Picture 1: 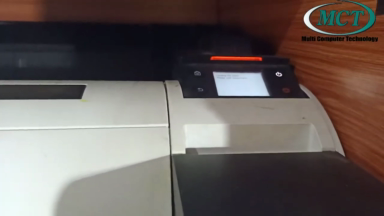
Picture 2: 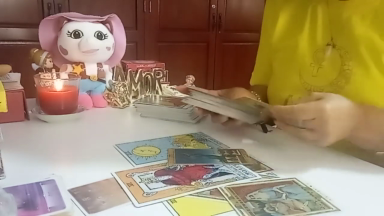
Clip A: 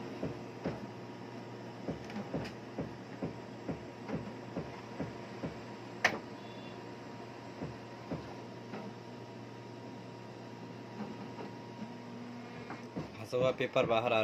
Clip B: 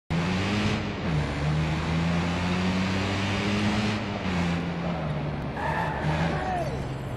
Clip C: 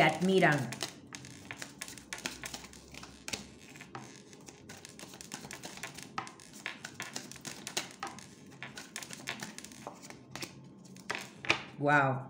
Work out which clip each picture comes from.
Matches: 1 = A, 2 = C